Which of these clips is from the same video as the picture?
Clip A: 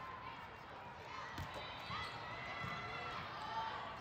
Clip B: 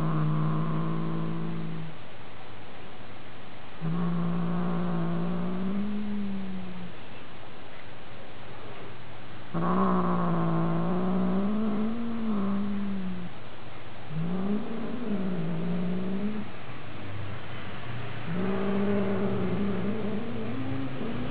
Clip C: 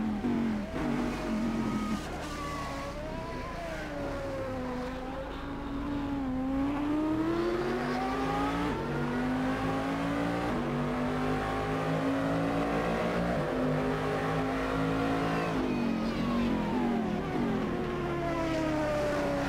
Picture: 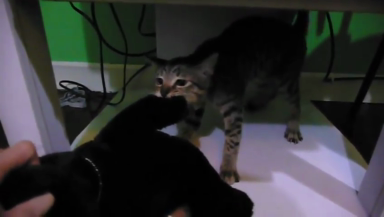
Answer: B